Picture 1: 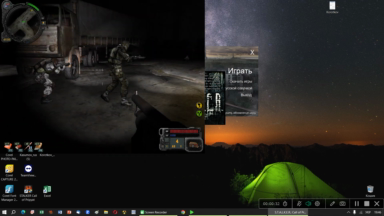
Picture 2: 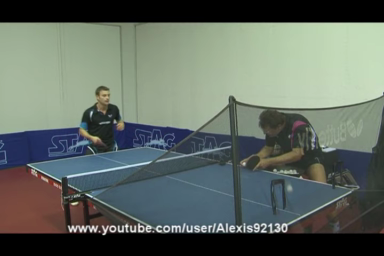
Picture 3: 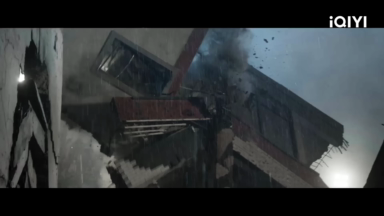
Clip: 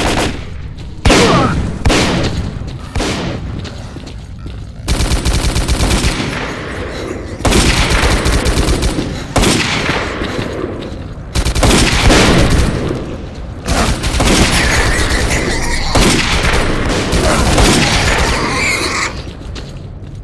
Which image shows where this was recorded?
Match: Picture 1